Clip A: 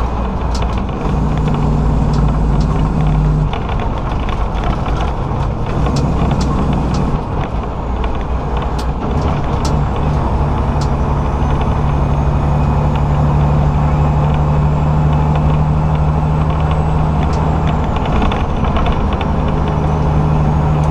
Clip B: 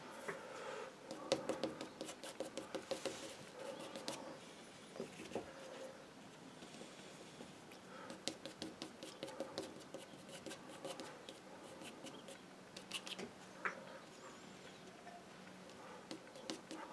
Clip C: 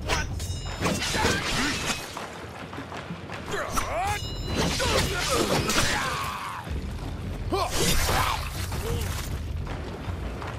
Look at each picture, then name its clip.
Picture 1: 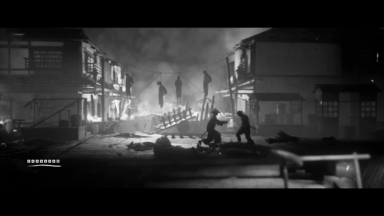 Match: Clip C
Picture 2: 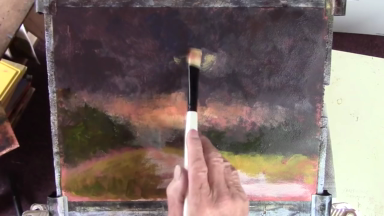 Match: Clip B